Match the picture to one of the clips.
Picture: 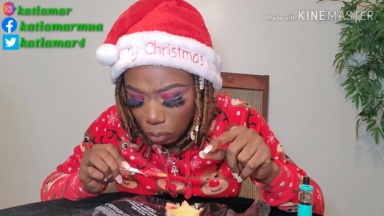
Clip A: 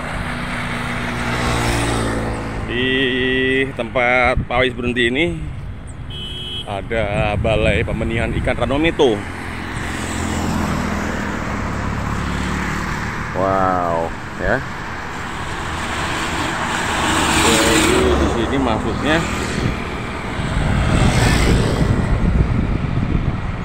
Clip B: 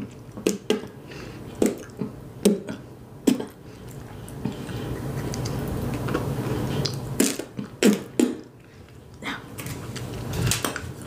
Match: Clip B